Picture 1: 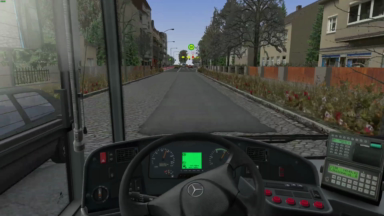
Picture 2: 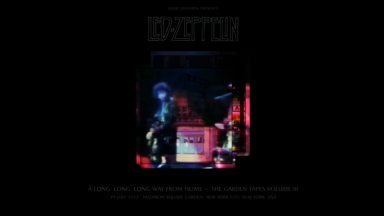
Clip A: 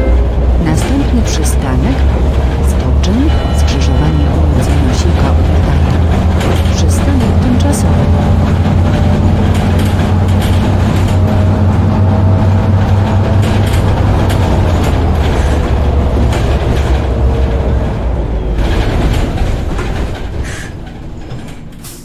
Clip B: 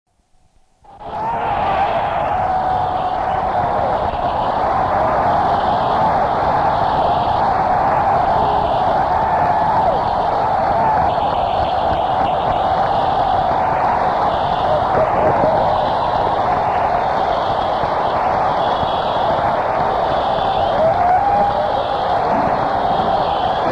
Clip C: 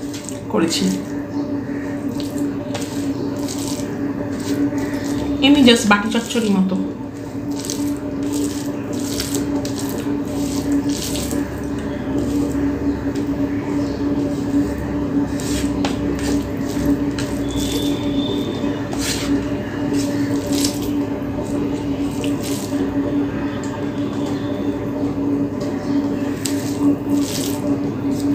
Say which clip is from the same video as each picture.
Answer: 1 A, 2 B